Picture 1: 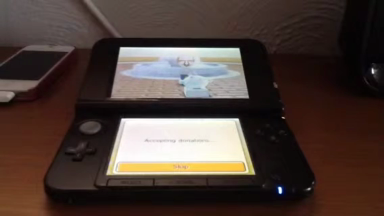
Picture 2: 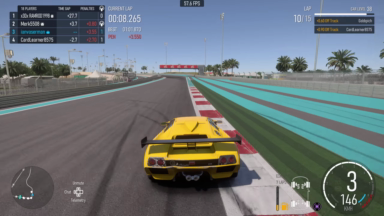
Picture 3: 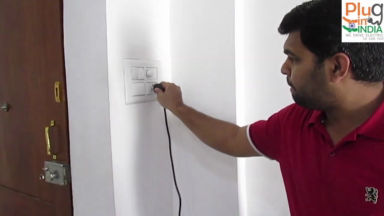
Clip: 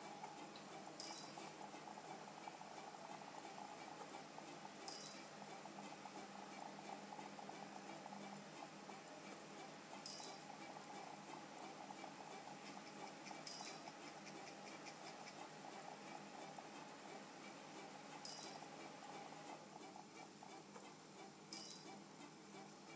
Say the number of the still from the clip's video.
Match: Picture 1